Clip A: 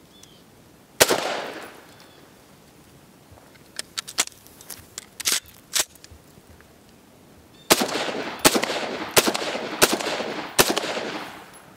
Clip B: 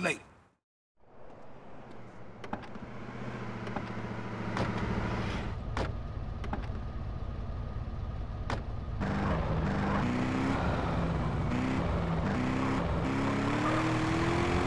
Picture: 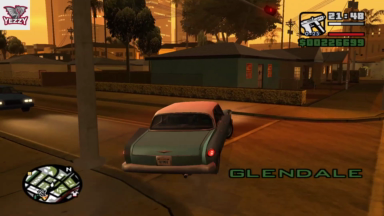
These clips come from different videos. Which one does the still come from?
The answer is B